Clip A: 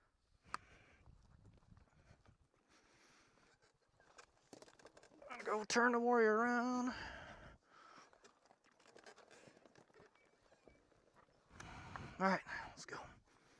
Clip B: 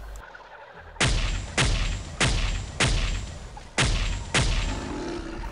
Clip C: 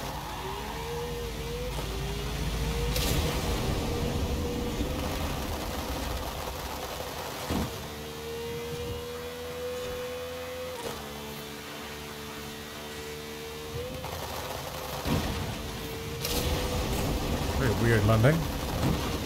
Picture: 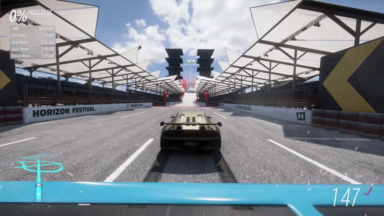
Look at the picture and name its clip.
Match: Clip C